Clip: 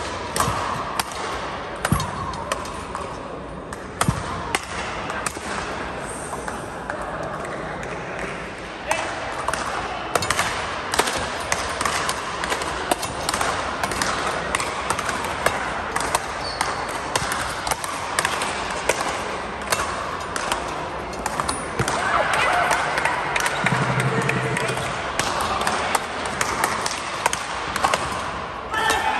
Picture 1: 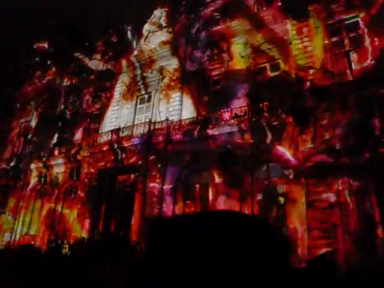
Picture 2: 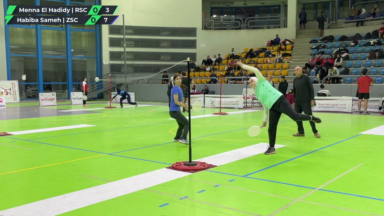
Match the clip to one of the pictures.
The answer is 2